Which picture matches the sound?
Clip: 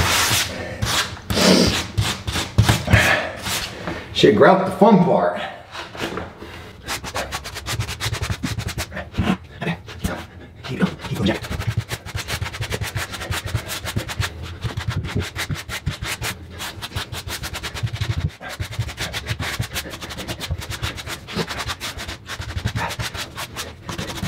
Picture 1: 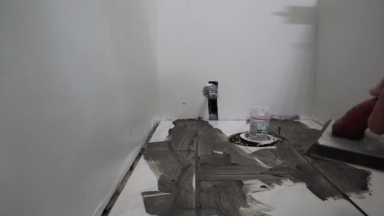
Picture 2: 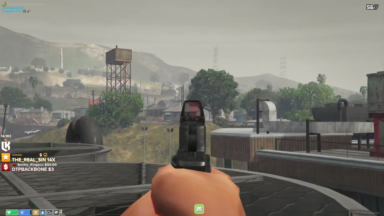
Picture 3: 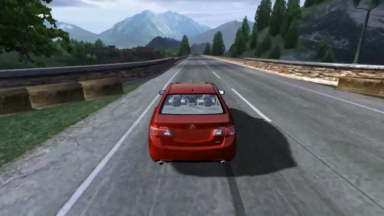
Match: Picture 1